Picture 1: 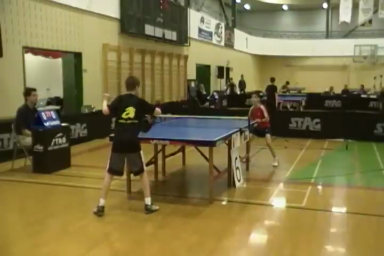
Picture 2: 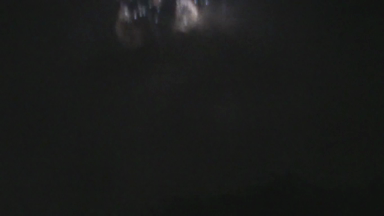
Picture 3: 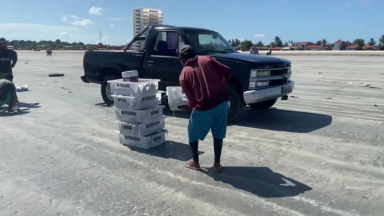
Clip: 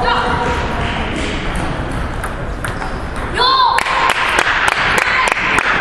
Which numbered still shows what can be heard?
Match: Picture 1